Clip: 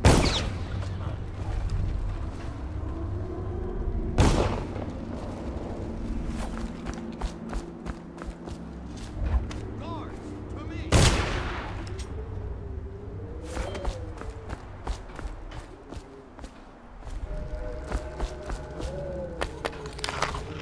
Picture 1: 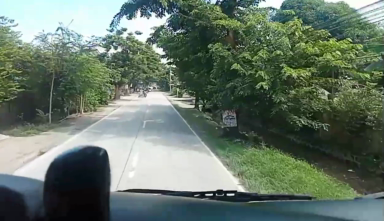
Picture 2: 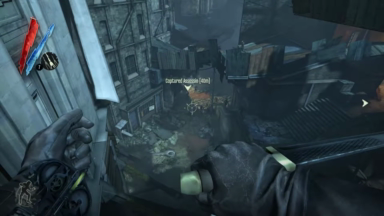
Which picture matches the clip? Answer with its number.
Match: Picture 2